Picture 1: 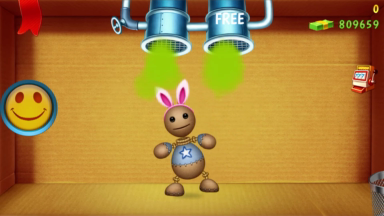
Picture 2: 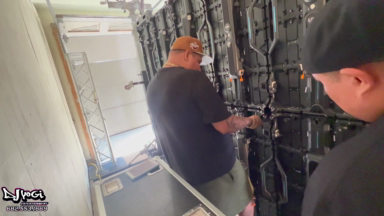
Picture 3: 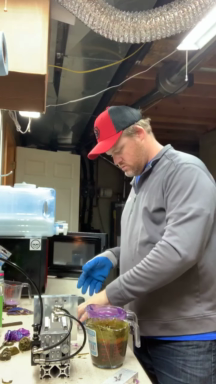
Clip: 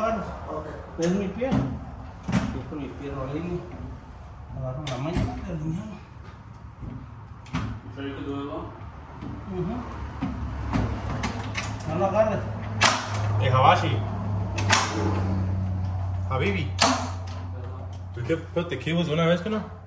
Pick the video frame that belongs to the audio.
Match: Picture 2